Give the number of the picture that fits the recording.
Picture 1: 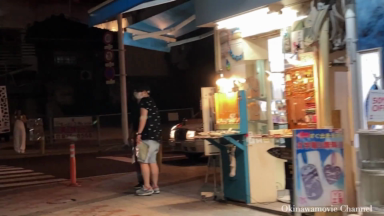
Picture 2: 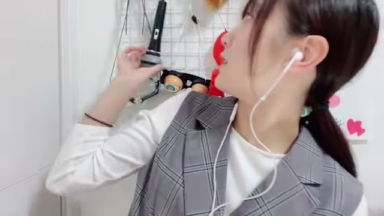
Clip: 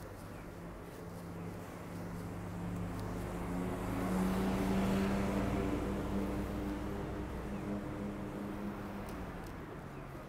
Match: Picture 1